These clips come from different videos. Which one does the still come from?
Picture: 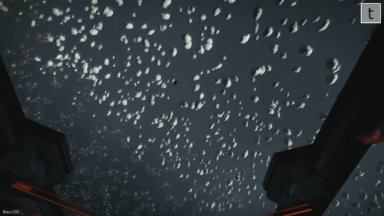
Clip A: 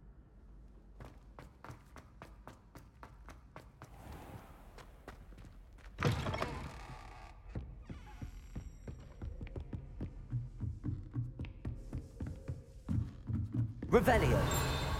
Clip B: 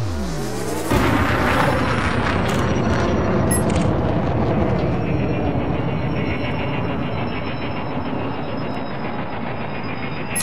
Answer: B